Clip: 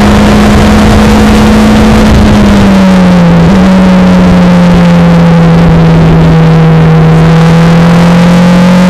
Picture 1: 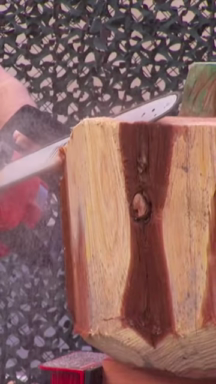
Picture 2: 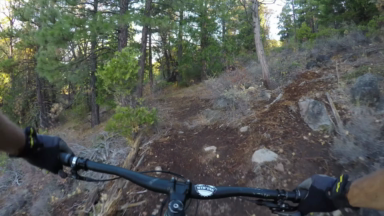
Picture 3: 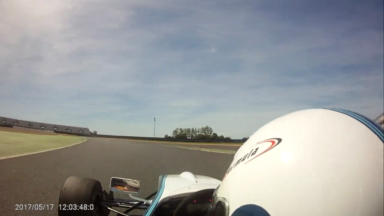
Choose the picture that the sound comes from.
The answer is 3